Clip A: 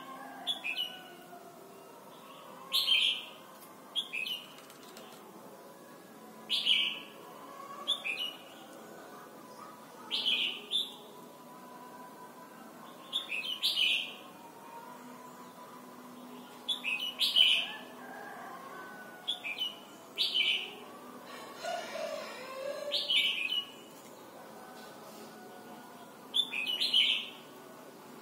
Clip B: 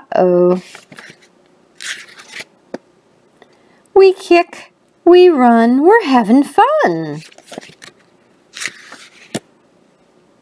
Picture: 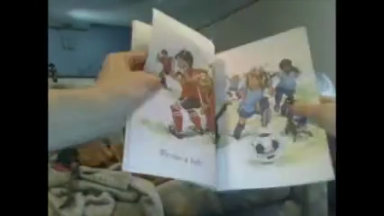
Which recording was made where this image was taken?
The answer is B